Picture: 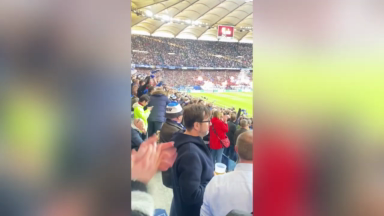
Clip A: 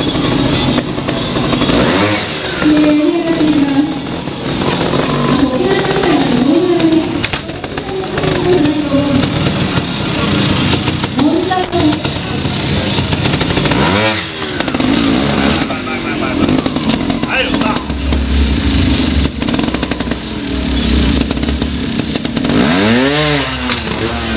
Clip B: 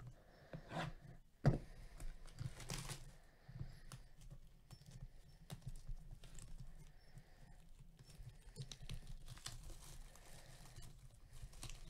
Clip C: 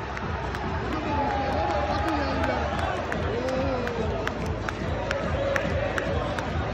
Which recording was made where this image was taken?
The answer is C